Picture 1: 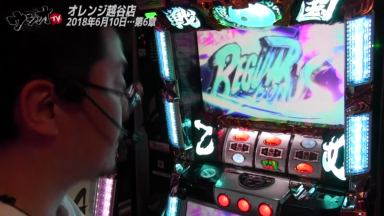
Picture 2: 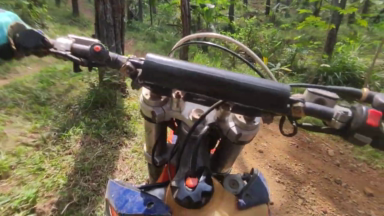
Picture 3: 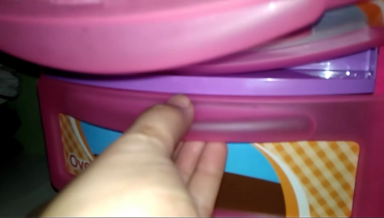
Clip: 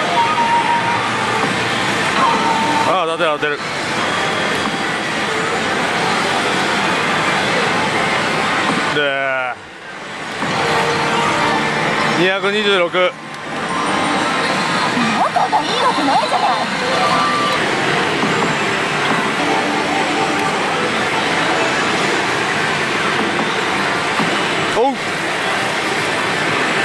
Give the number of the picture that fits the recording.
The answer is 1